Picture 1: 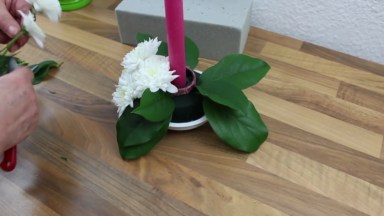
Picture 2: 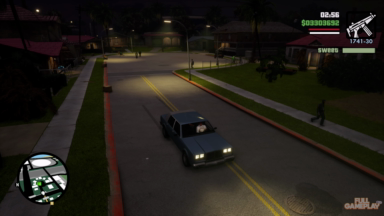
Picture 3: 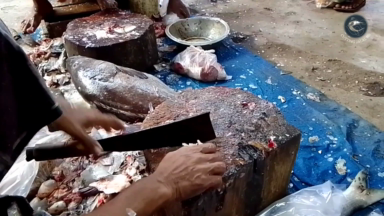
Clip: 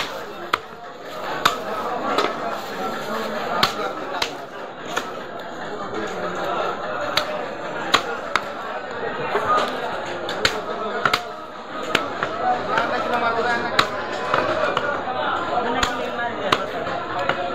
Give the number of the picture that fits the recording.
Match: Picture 3